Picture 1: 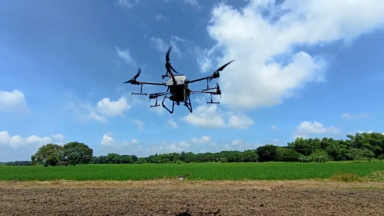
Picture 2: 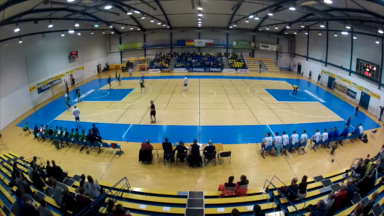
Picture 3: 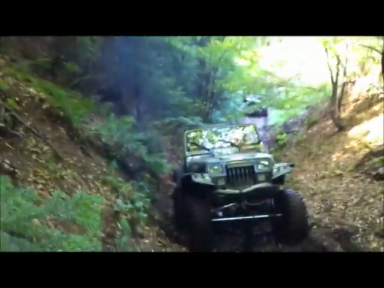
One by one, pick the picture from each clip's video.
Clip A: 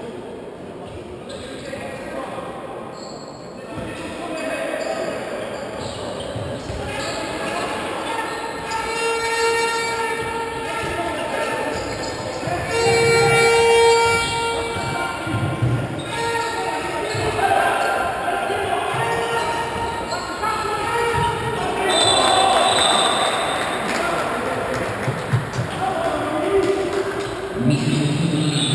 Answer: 2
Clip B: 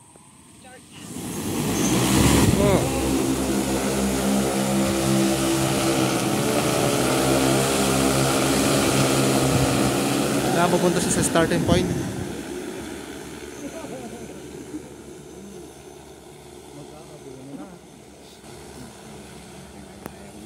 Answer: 1